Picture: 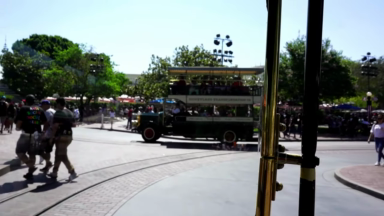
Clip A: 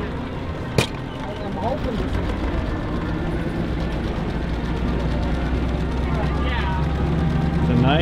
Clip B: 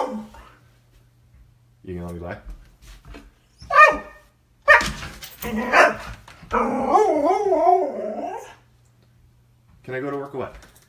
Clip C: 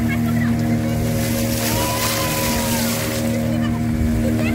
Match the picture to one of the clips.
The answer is A